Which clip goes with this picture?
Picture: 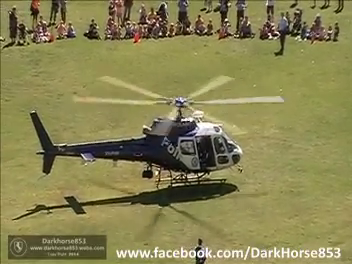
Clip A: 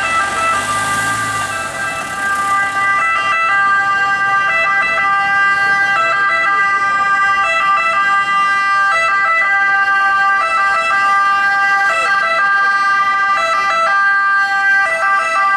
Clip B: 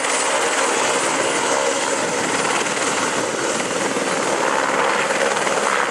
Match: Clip B